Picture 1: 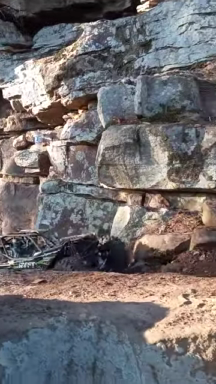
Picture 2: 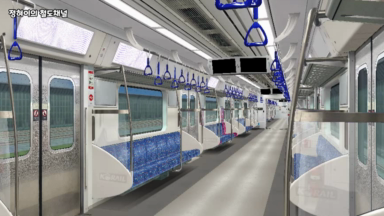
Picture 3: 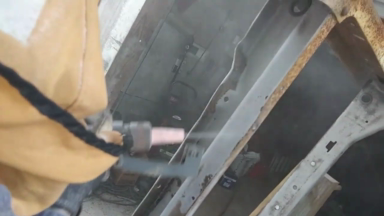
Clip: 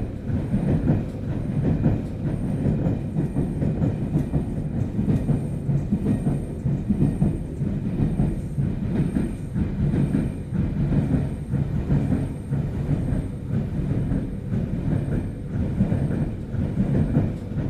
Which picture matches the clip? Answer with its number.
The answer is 2